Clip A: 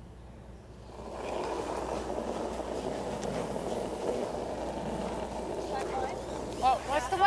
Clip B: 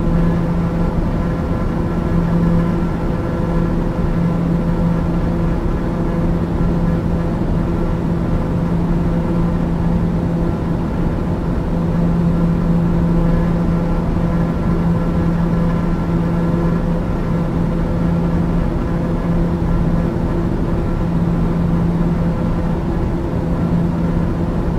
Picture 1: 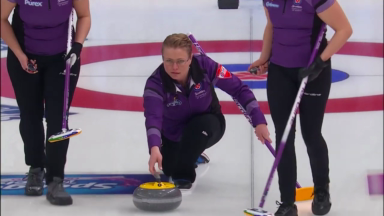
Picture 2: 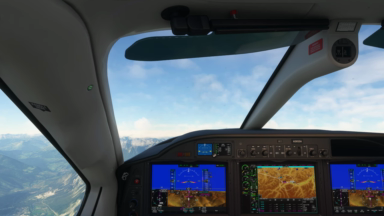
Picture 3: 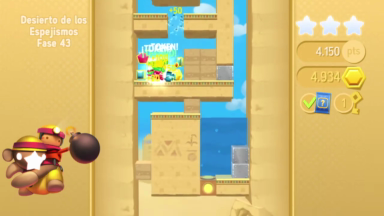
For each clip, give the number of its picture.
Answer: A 1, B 2